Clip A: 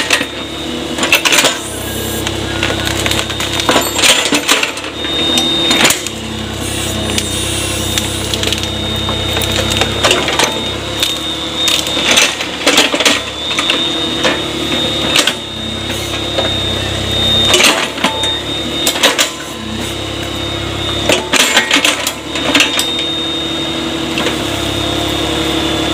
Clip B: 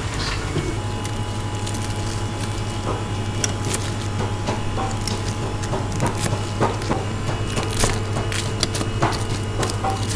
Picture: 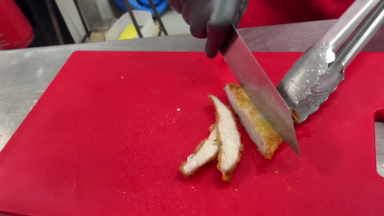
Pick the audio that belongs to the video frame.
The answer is B